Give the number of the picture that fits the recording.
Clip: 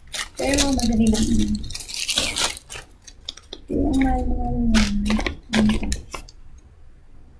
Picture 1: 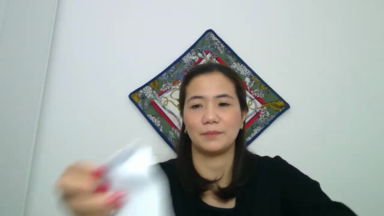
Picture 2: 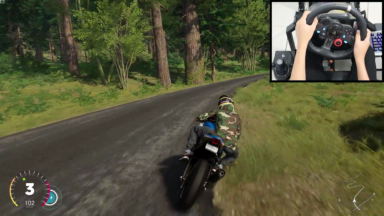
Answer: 1